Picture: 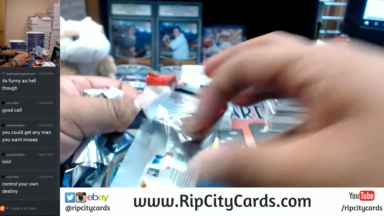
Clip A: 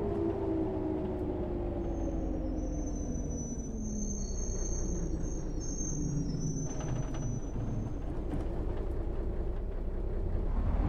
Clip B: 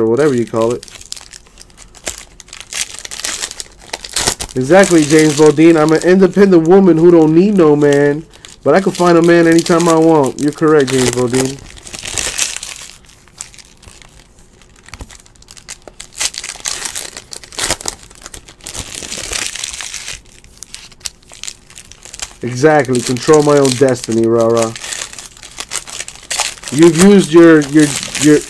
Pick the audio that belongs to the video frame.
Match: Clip B